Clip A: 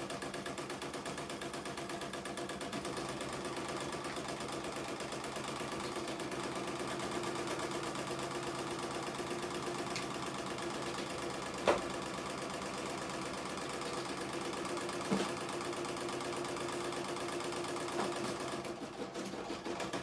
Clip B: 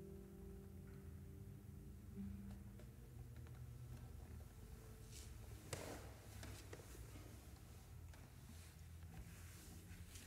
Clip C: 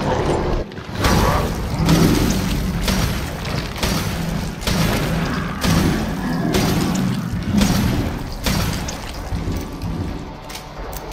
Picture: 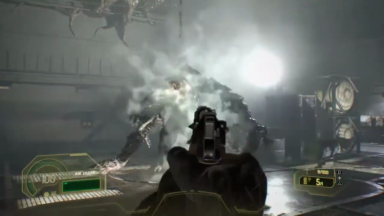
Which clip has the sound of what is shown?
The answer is C